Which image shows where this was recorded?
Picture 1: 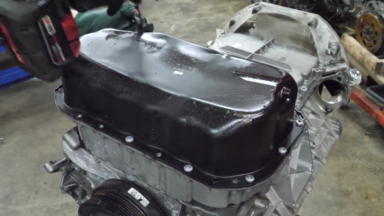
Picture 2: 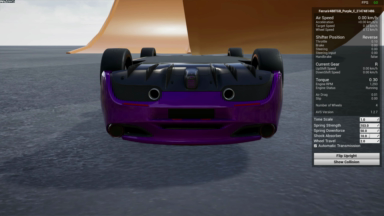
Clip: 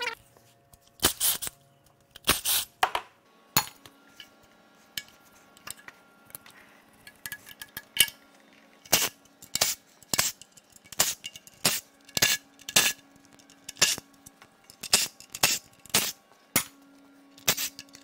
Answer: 1